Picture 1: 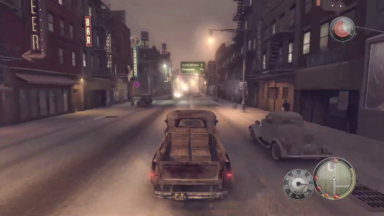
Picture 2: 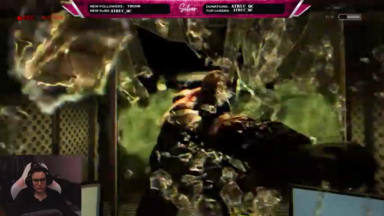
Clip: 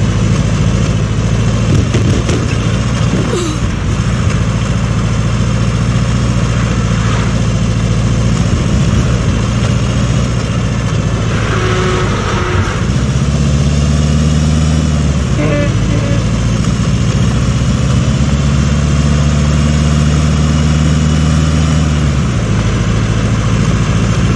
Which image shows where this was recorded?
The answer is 1